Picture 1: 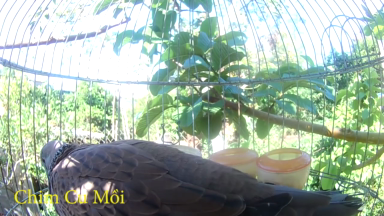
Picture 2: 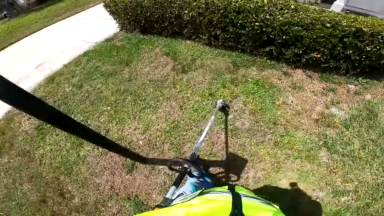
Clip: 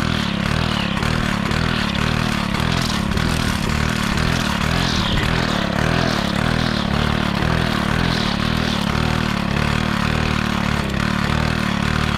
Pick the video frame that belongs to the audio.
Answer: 2